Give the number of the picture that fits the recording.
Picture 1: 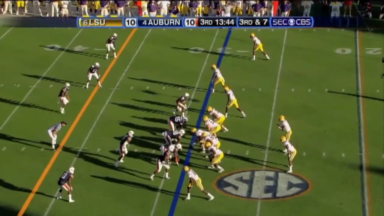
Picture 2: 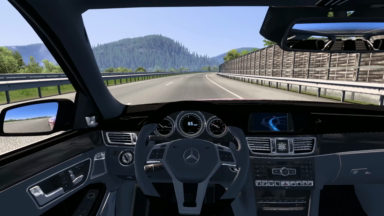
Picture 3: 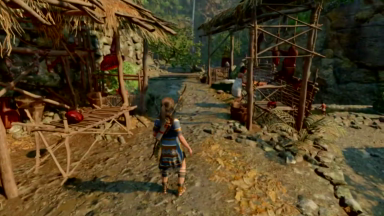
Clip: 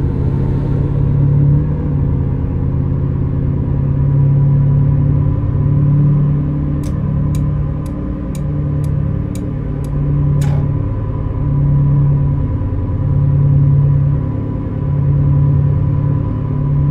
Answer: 2